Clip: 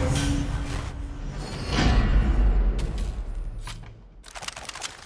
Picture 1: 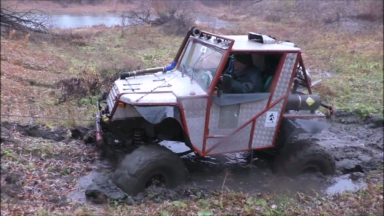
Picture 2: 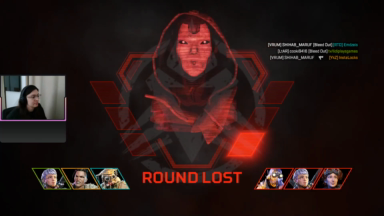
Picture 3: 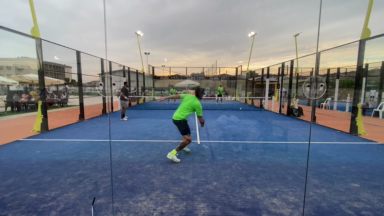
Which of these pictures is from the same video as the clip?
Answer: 2